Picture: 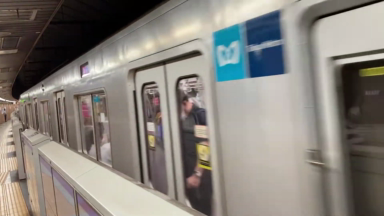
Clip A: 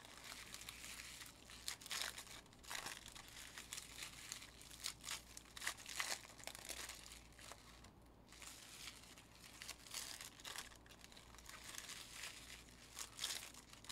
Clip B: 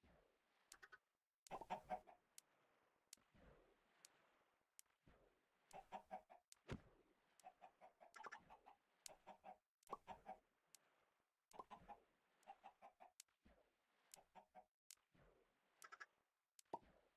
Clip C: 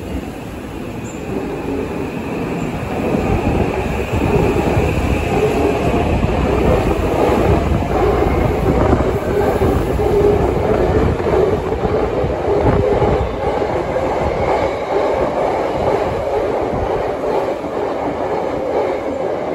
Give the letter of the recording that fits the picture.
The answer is C